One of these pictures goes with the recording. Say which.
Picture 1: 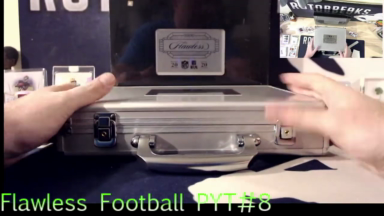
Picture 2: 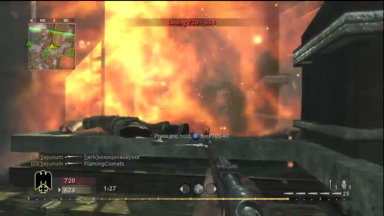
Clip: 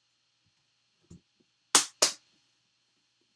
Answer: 1